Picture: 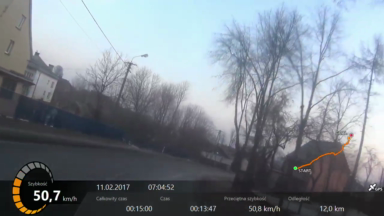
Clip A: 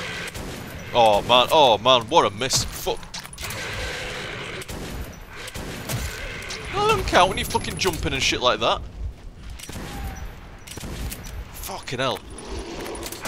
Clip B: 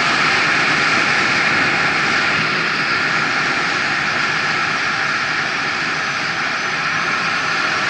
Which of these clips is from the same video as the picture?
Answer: B